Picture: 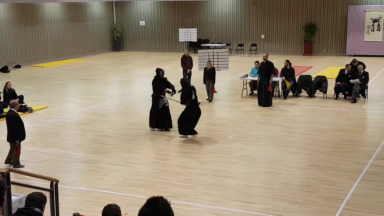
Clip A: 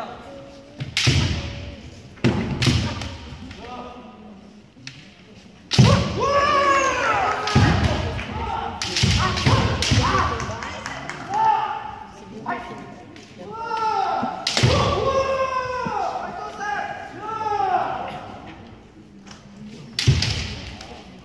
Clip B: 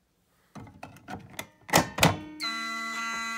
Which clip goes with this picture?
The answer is A